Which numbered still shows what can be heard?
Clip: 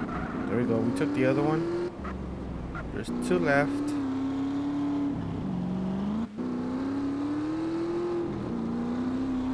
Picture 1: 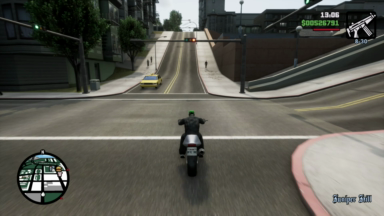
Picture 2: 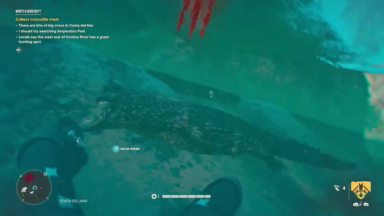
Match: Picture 1